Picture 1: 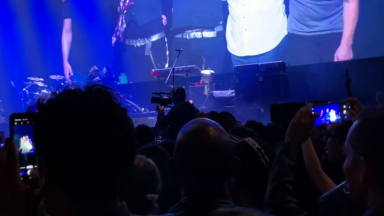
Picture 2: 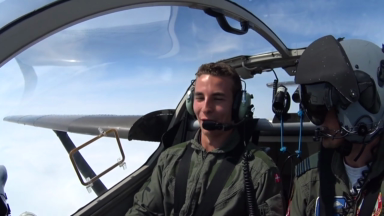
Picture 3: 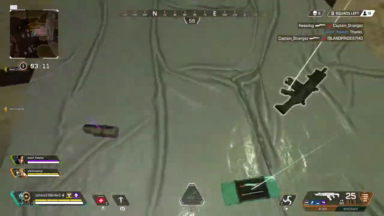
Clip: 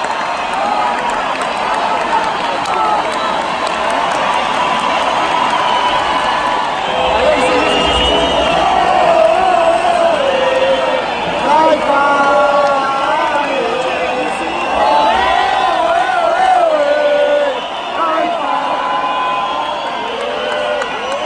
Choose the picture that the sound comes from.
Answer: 1